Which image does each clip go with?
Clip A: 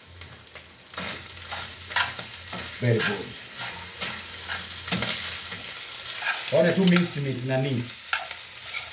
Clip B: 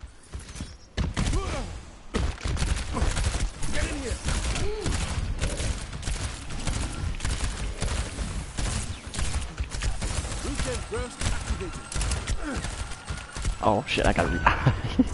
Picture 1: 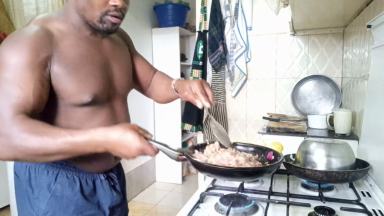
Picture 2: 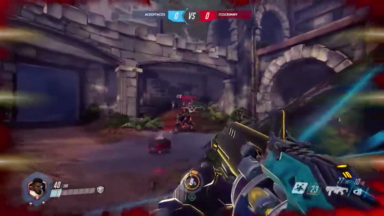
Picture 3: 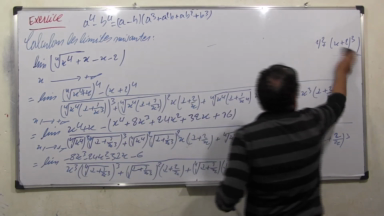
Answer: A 1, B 2